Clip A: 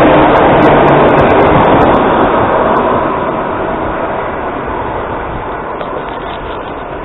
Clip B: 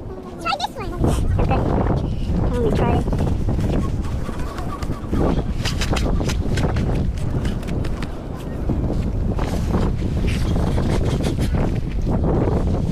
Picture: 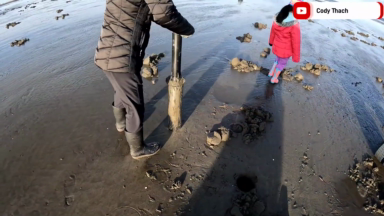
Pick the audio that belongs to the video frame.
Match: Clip B